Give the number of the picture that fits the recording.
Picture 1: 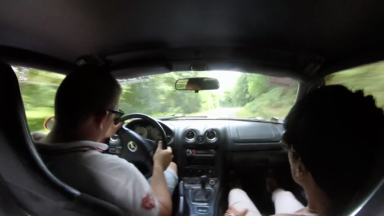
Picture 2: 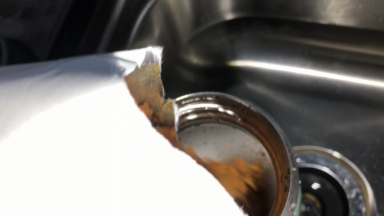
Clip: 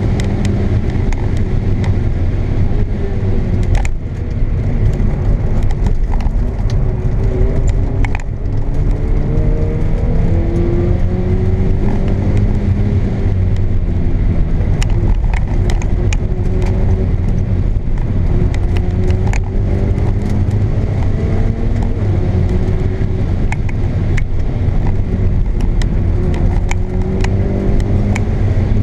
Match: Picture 1